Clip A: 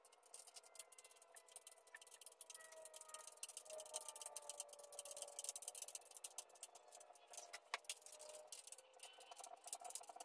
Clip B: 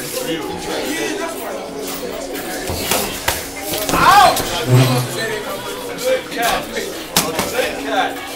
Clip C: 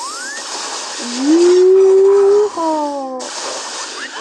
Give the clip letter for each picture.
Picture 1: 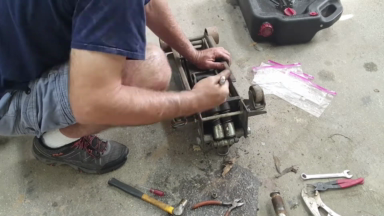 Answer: A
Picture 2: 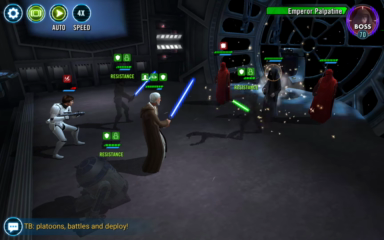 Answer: C